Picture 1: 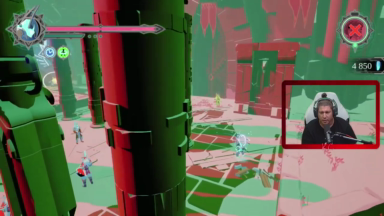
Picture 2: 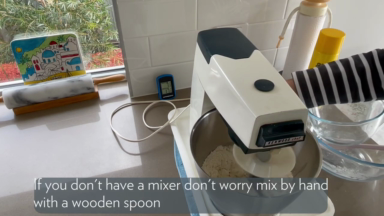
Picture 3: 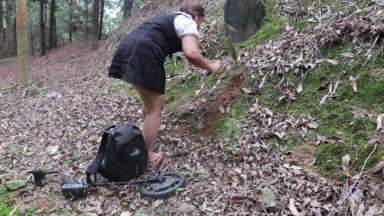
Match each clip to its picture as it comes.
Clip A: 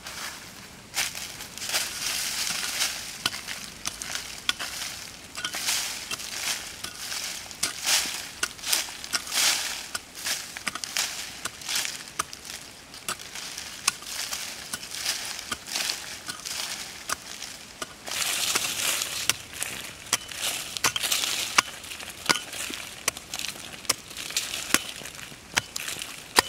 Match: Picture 3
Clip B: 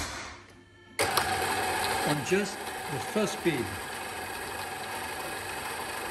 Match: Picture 2